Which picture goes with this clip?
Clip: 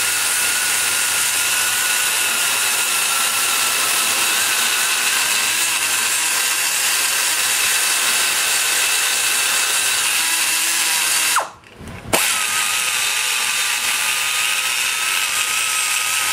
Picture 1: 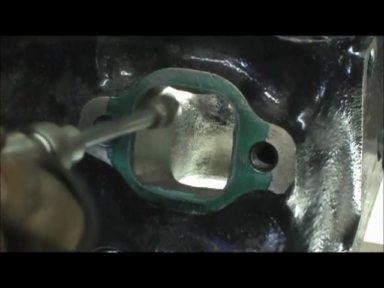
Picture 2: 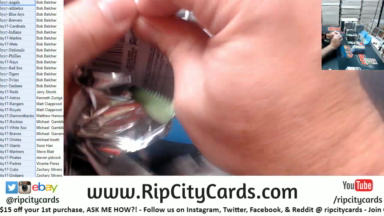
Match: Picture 1